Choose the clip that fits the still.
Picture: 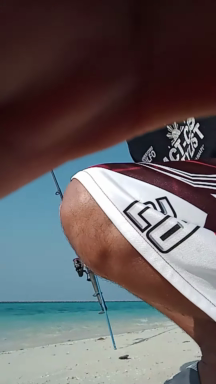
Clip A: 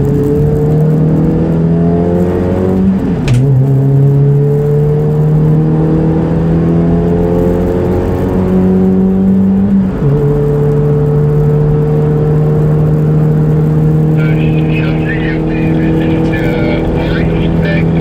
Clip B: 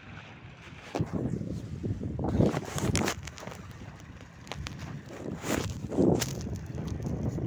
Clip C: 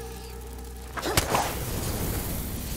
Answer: B